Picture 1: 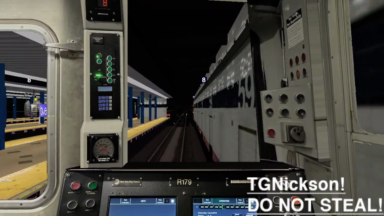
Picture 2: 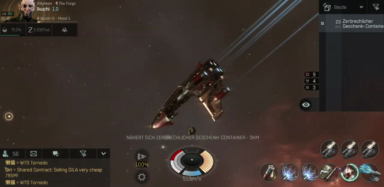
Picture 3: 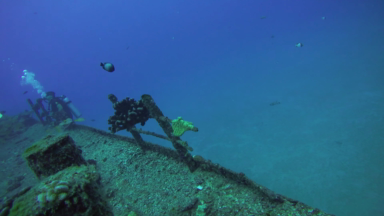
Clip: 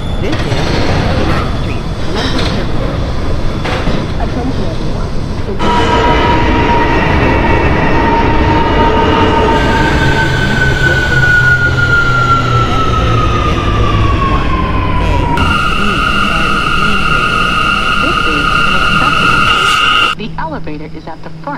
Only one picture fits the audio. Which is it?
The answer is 1